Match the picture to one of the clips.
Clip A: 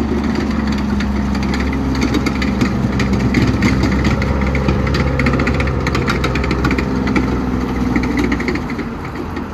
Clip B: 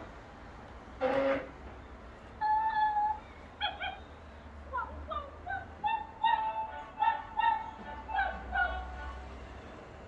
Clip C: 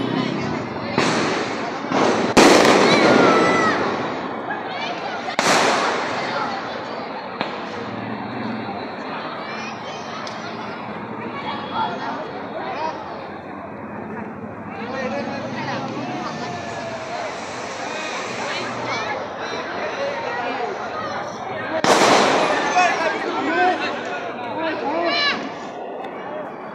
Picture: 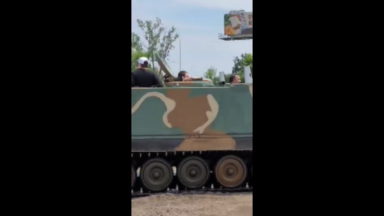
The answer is A